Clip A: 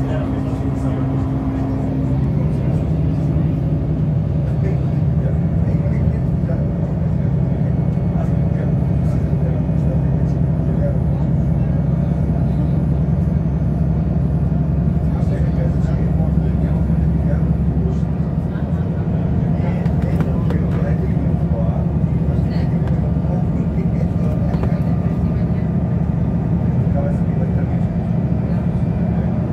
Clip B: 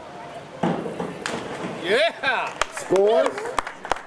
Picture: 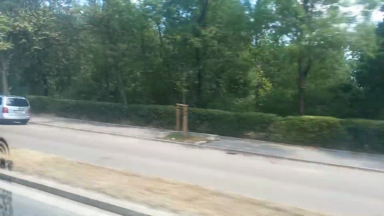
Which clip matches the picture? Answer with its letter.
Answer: A